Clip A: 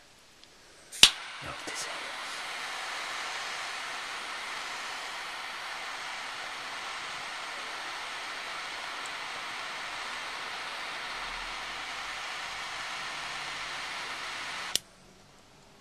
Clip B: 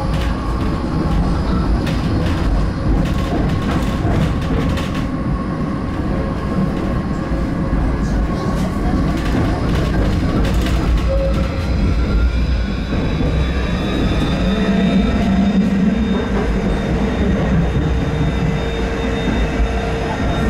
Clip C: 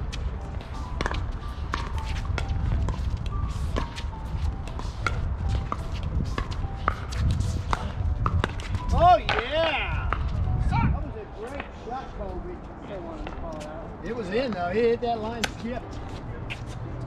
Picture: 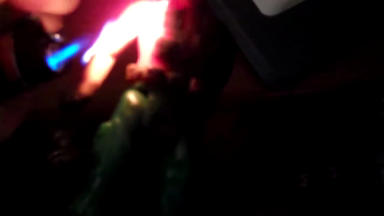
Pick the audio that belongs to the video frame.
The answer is A